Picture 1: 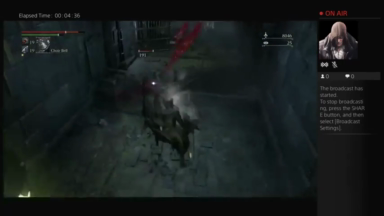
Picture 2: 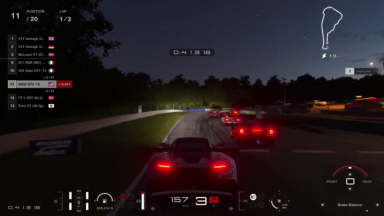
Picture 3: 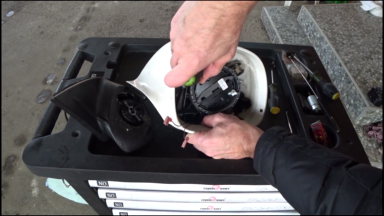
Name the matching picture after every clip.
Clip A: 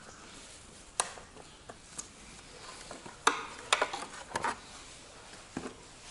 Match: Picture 3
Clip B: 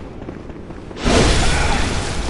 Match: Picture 1